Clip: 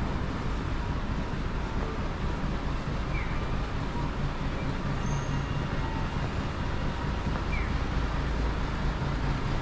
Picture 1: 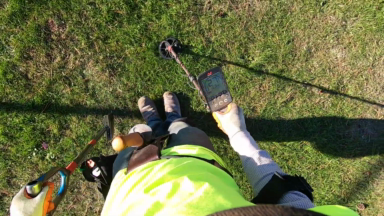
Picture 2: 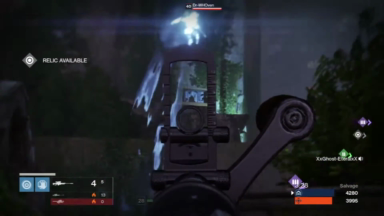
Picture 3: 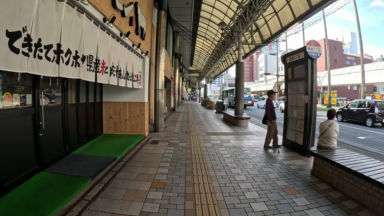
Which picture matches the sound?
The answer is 3